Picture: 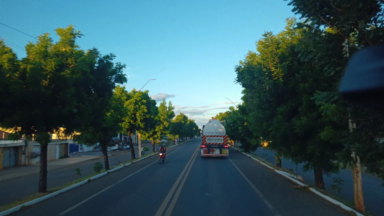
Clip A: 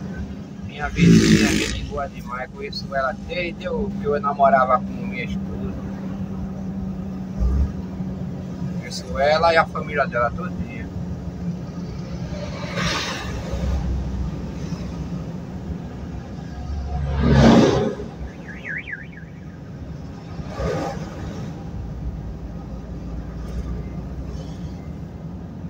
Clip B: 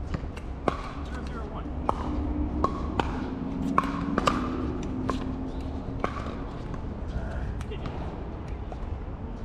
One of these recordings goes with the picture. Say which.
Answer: A